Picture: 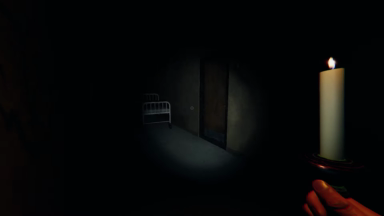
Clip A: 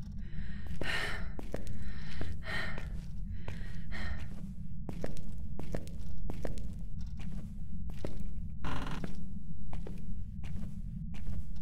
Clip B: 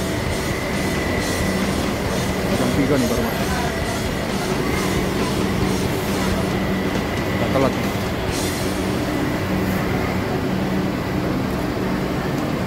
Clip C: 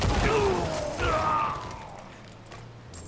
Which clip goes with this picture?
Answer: A